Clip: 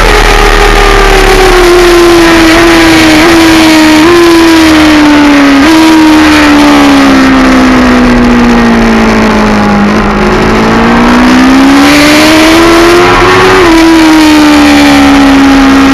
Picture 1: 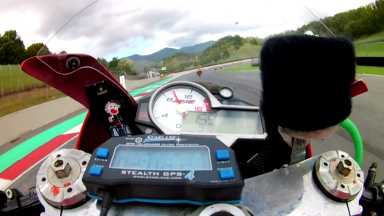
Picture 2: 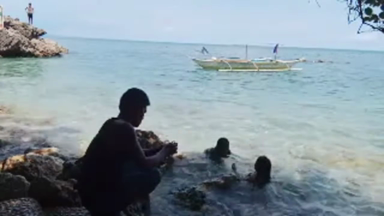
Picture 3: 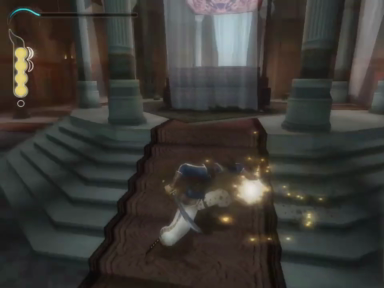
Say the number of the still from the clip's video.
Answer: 1